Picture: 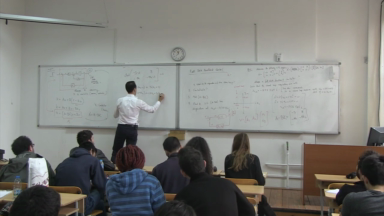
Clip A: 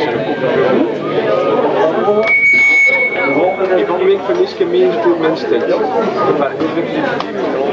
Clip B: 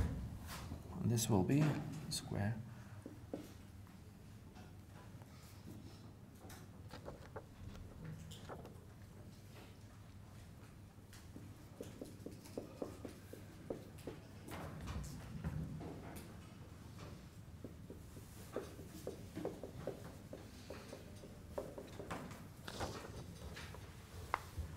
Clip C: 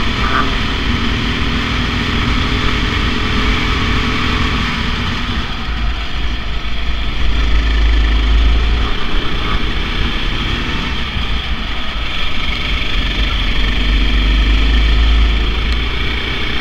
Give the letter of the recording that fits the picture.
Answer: B